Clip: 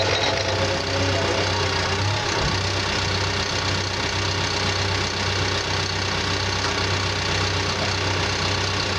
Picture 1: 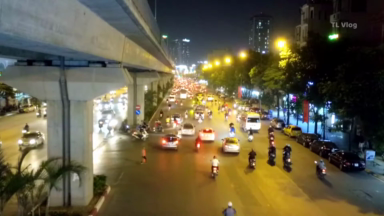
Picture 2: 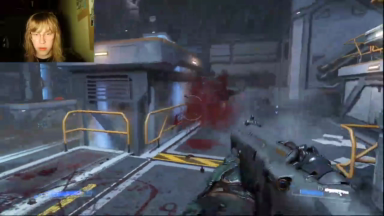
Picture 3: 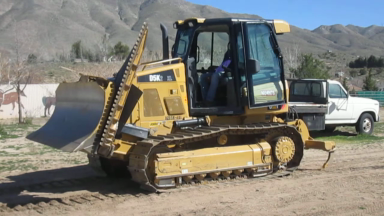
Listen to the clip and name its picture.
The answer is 3